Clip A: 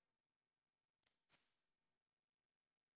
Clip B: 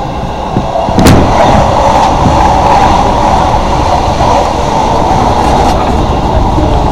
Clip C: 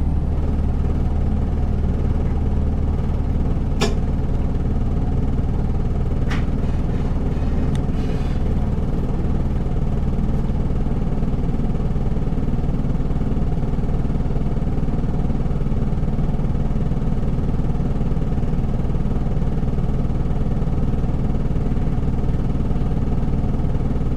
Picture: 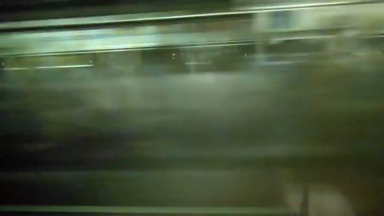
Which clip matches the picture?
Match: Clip B